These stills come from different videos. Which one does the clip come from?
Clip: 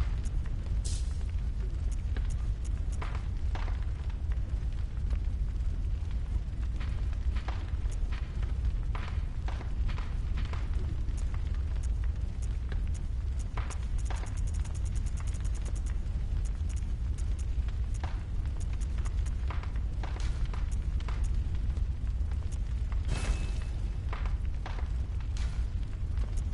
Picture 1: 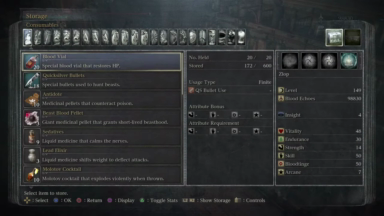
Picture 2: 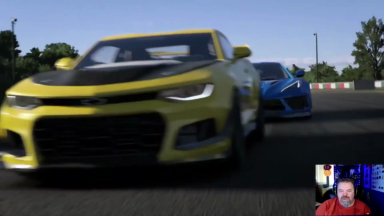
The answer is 1